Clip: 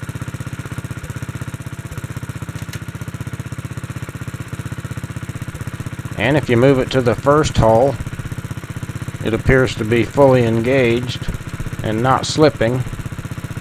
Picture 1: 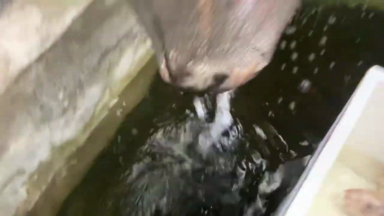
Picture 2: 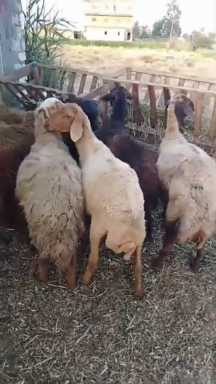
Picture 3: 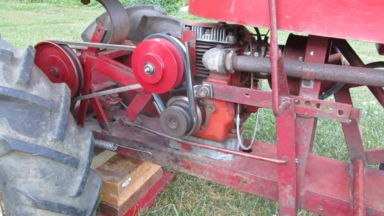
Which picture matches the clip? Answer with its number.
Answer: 3